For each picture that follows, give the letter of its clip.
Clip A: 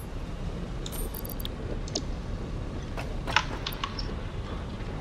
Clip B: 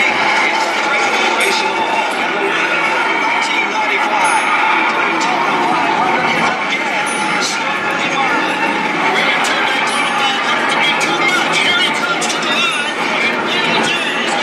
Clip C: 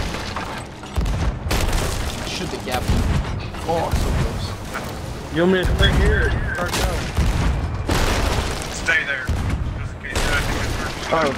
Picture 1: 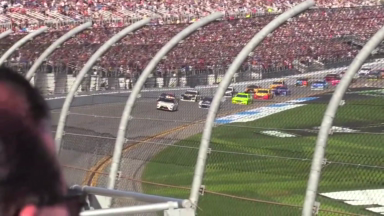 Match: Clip B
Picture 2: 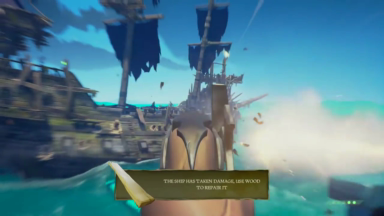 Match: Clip C